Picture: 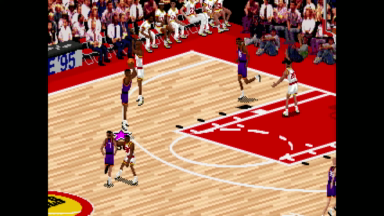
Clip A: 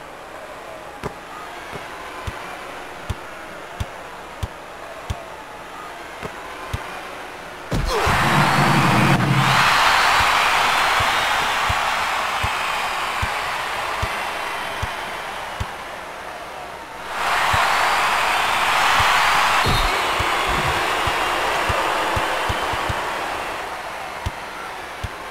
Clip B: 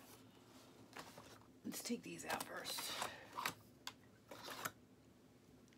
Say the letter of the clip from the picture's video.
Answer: A